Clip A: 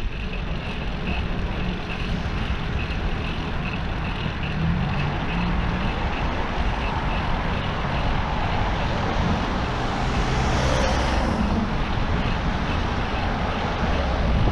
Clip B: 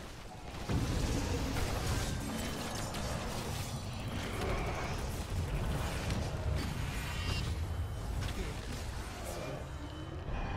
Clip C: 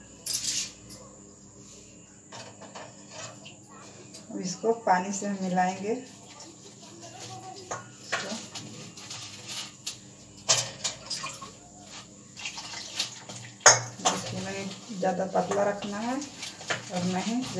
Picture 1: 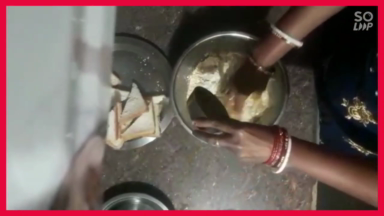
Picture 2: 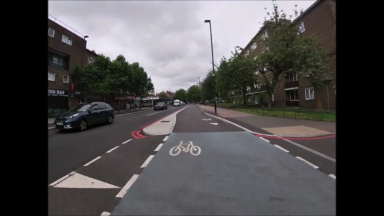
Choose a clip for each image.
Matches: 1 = C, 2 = A